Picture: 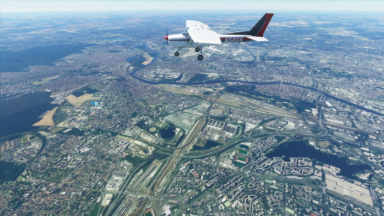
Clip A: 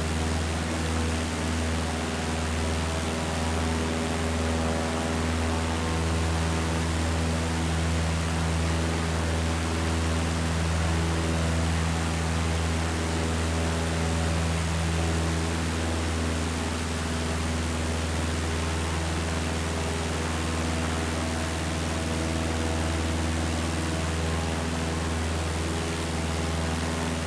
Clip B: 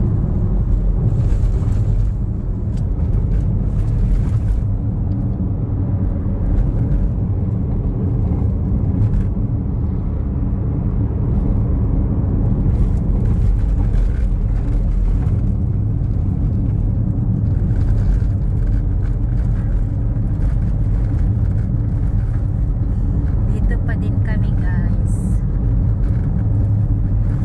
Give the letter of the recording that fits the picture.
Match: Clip A